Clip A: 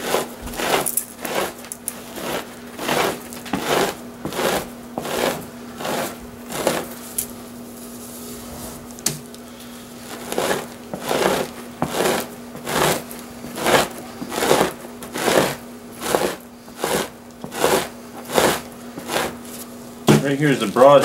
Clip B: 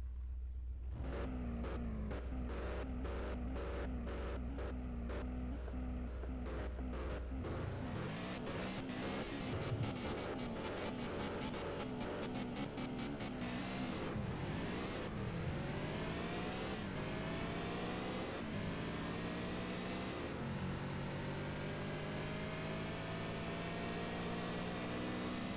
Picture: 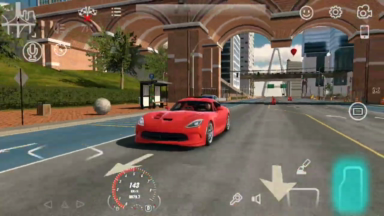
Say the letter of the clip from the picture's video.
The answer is B